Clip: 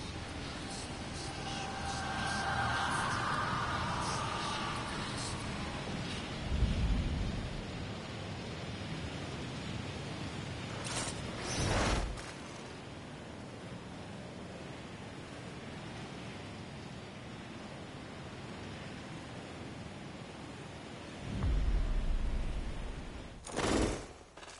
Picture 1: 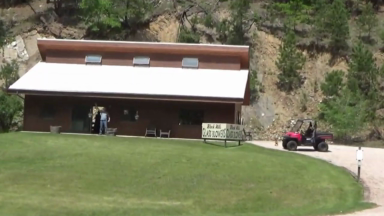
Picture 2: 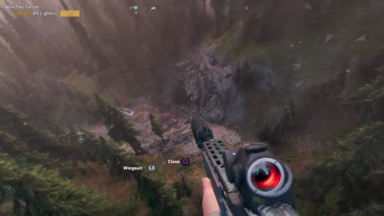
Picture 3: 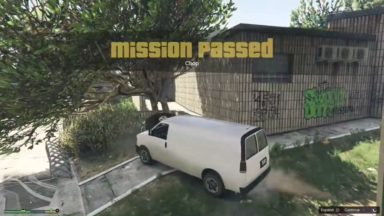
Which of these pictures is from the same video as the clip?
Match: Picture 2